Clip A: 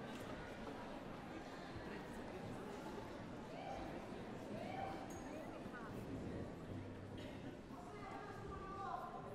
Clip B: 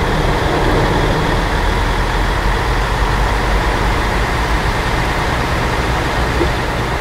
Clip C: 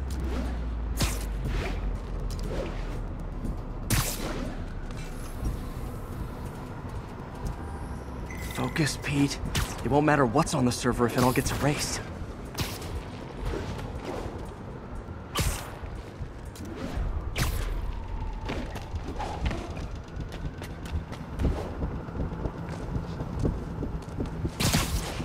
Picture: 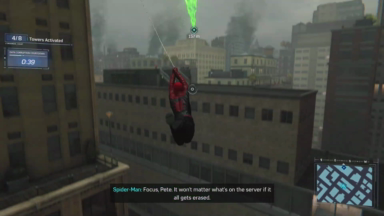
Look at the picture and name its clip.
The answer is C